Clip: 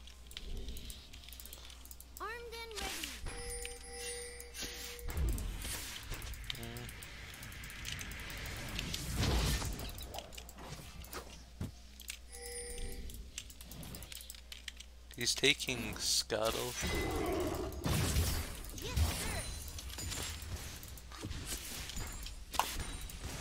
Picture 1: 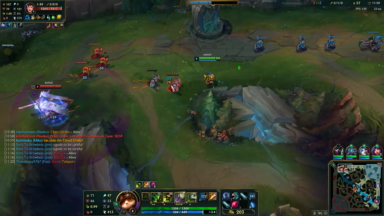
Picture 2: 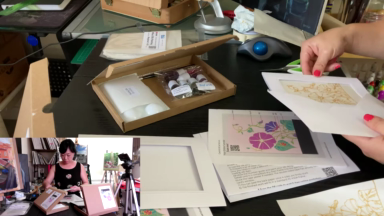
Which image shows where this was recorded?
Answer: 1